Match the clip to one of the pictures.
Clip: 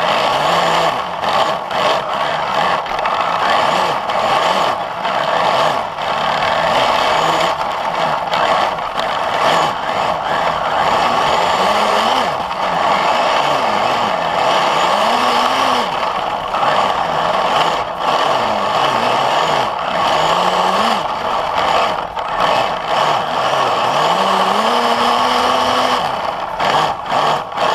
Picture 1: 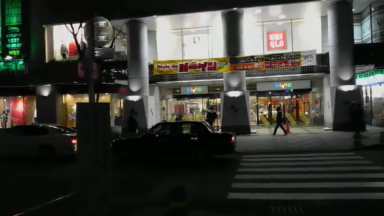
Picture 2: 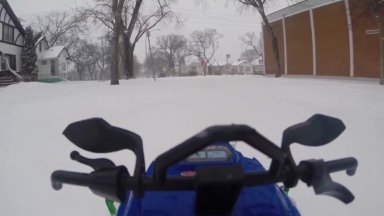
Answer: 2